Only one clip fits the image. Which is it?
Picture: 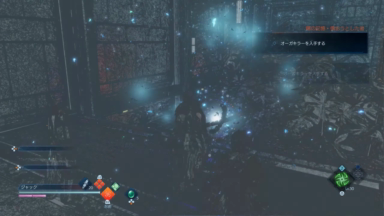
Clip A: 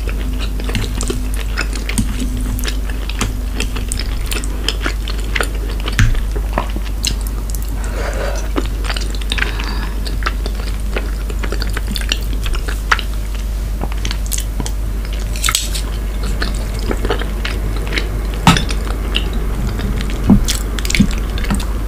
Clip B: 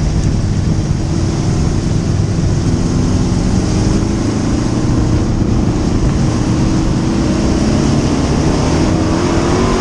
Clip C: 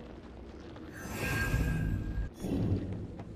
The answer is C